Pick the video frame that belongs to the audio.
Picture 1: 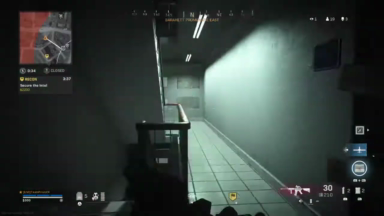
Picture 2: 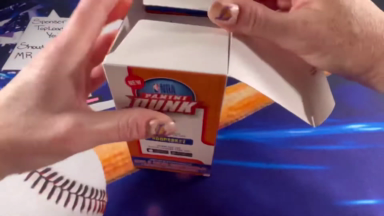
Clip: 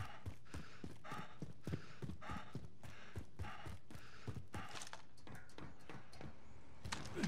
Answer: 1